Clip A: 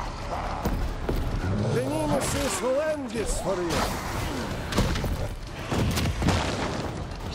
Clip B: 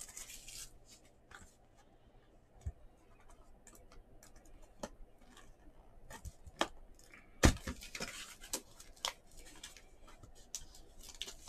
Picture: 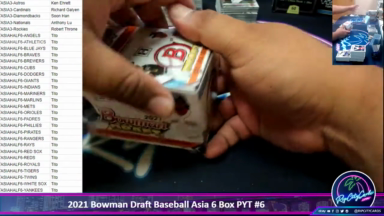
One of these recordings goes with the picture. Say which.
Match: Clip B